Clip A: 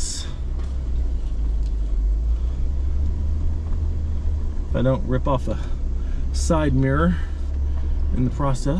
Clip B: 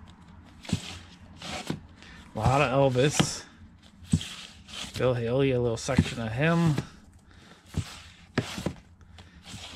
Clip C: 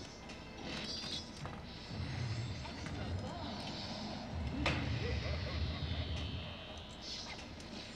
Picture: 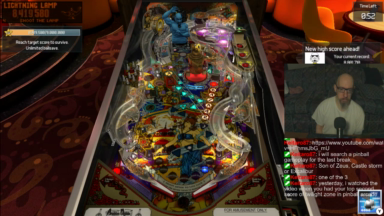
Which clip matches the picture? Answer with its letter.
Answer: C